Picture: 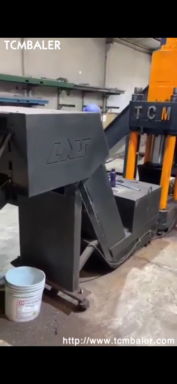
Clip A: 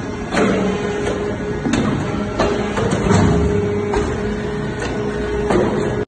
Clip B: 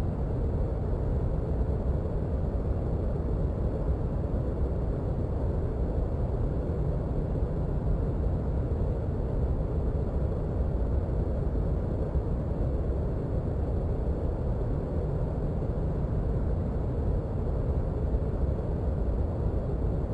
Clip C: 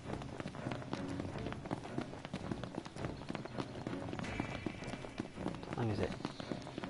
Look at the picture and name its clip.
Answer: A